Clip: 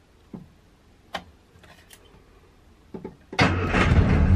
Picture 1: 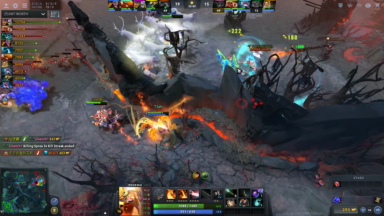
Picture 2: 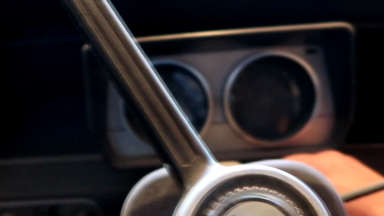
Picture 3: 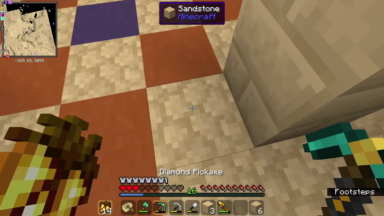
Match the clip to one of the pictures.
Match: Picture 2